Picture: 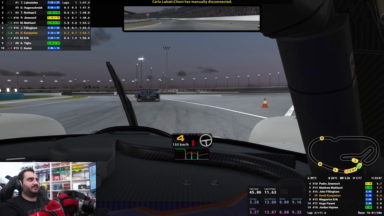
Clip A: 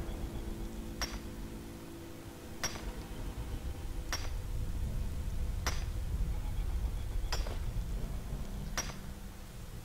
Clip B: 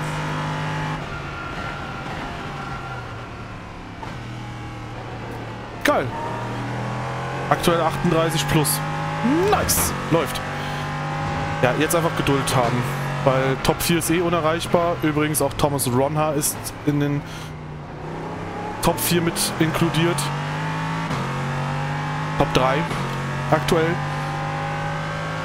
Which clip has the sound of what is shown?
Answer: B